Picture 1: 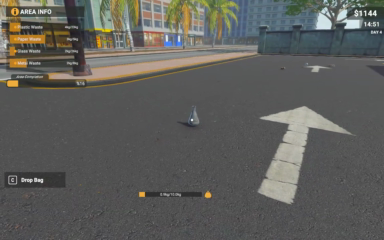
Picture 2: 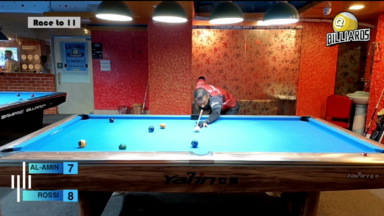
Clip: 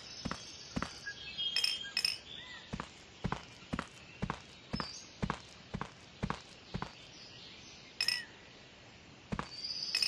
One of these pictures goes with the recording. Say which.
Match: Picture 1